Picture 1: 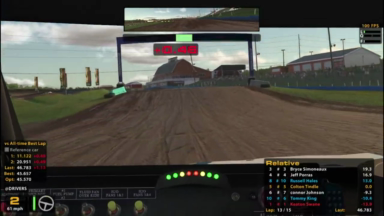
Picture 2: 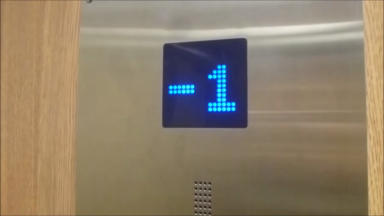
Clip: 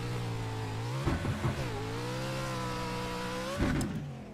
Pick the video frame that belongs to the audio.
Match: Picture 1